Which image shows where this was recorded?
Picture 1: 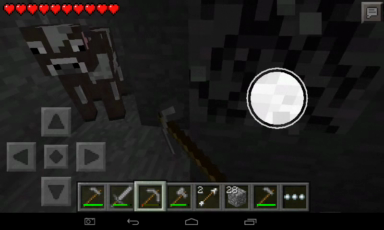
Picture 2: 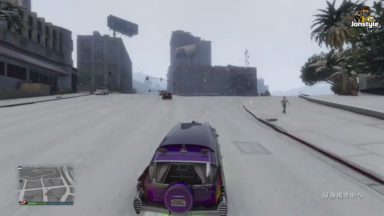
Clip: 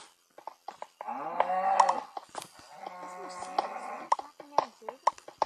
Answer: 1